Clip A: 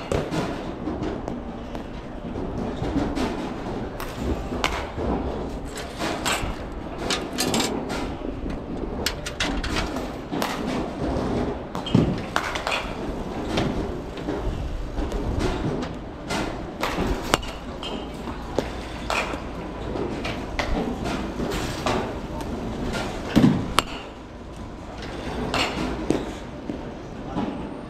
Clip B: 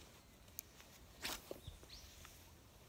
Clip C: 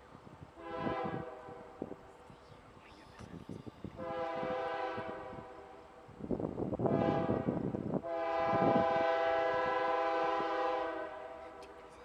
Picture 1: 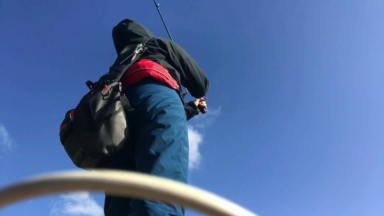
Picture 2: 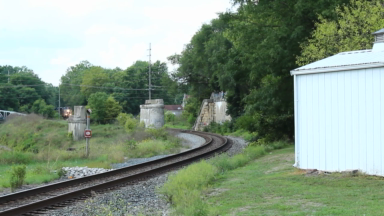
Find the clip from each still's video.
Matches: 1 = B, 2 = C